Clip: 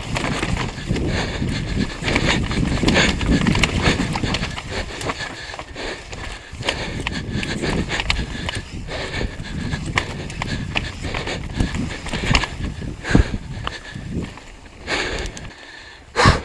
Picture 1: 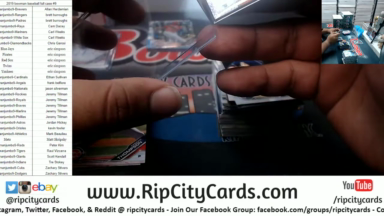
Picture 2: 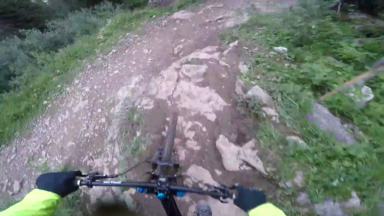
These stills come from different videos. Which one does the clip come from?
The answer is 2